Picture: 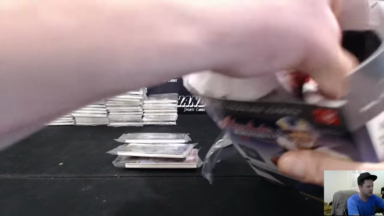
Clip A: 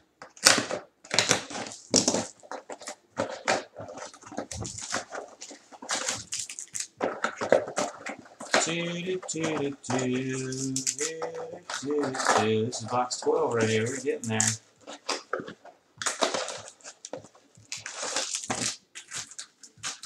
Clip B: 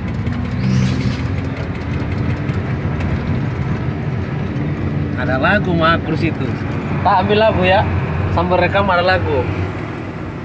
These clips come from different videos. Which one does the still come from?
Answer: A